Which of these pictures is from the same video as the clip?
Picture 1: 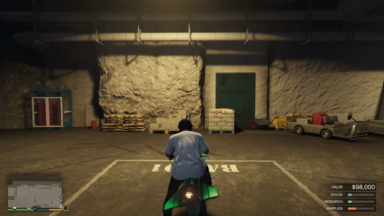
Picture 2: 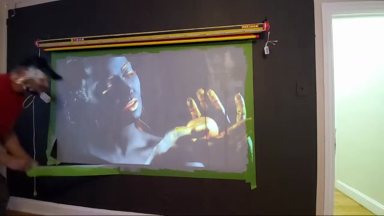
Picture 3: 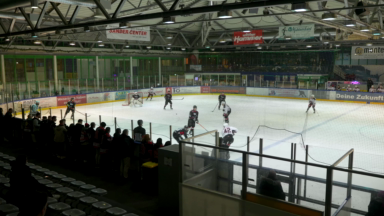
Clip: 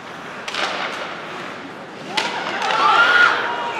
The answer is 3